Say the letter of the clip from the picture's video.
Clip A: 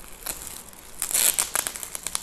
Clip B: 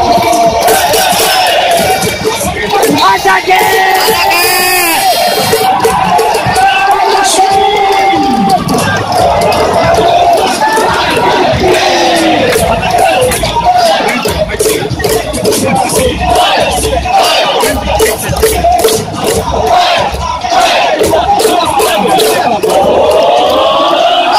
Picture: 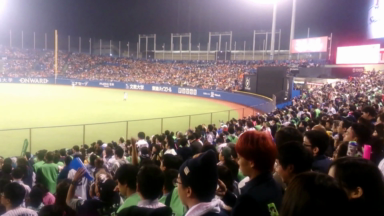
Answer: B